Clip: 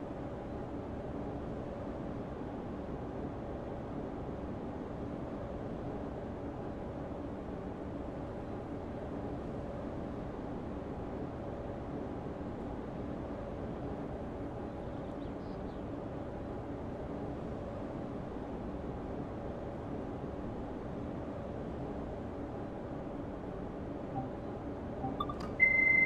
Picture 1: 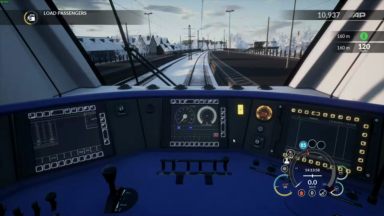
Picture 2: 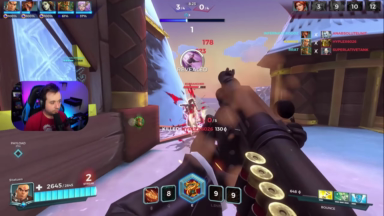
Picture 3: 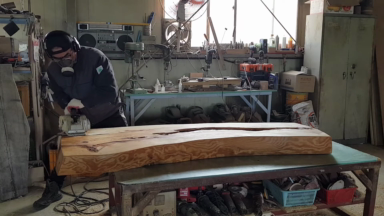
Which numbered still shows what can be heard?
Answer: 1